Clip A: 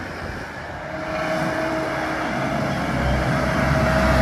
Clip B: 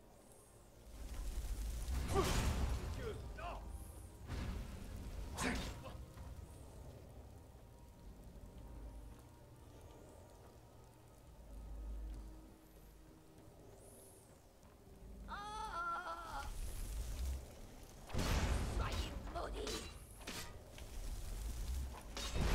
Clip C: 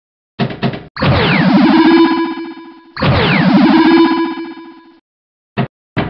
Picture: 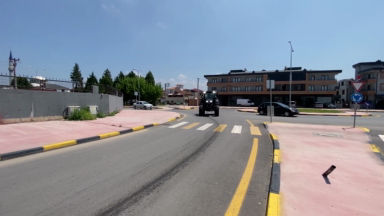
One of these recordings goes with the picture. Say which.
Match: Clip A